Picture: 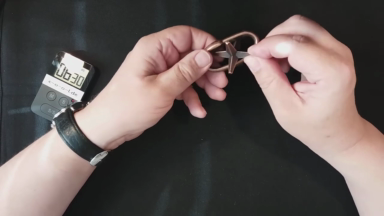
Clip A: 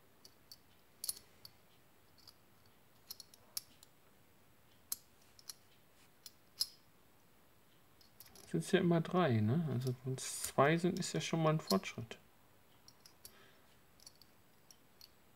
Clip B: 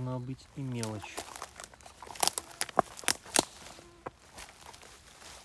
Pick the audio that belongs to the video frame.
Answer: A